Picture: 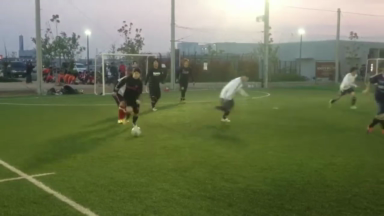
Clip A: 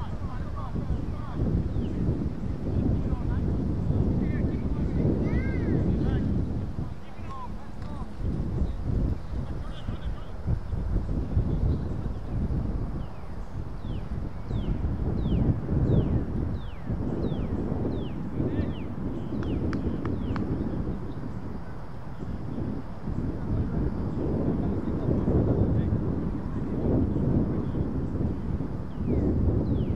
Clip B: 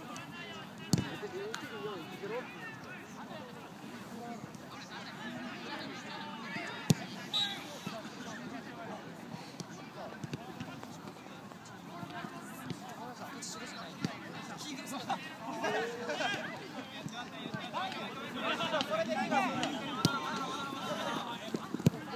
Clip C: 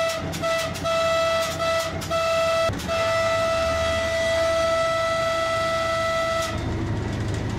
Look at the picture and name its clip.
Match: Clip B